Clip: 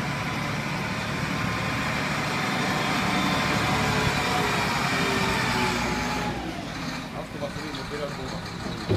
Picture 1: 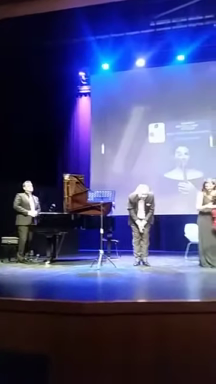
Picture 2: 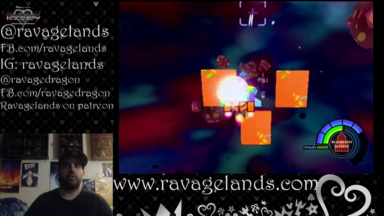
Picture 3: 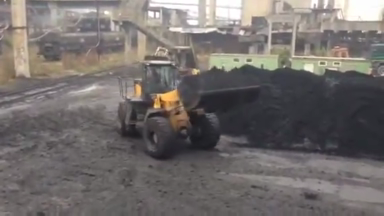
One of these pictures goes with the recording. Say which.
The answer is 3